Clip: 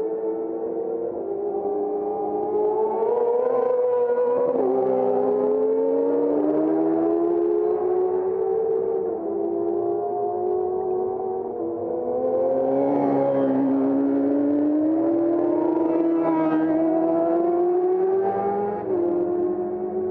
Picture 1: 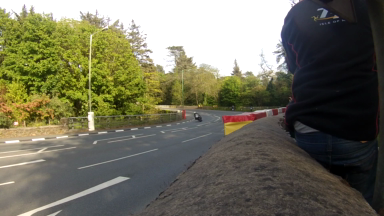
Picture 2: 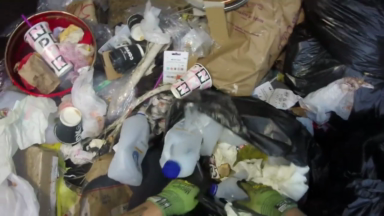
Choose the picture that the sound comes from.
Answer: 1